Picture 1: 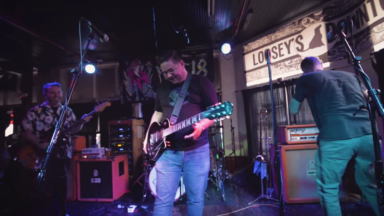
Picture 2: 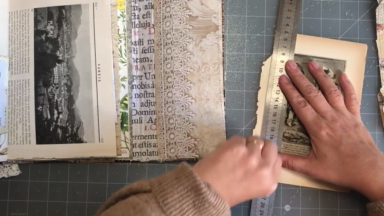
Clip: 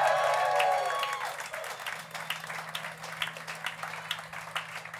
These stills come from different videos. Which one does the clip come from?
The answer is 1